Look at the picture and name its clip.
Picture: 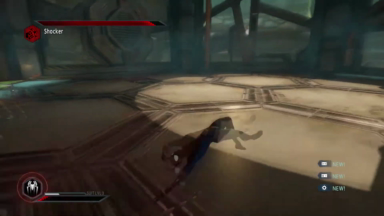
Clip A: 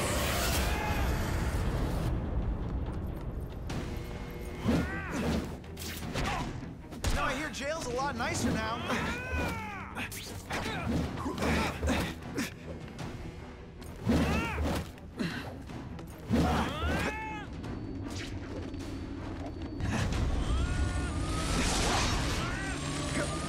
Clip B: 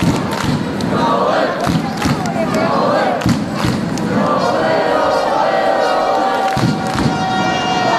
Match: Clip A